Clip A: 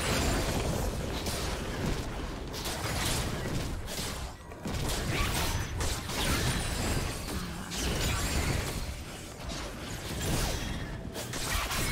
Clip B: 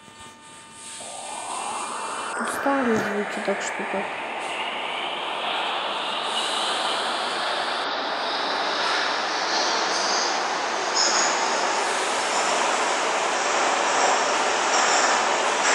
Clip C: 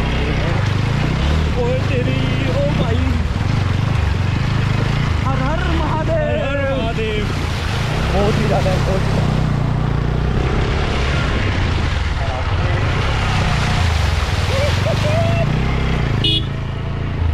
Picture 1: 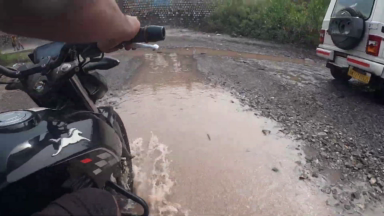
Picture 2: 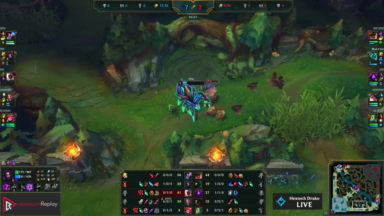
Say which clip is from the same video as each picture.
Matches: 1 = C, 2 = A